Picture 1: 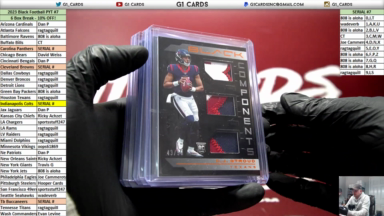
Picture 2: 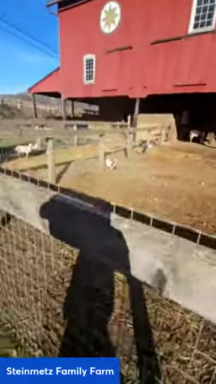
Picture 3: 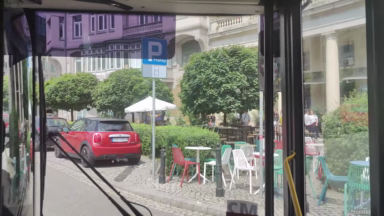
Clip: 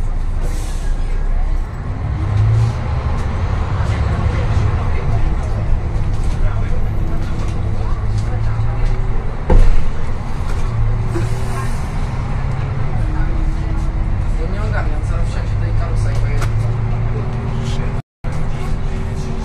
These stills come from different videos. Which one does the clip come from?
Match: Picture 3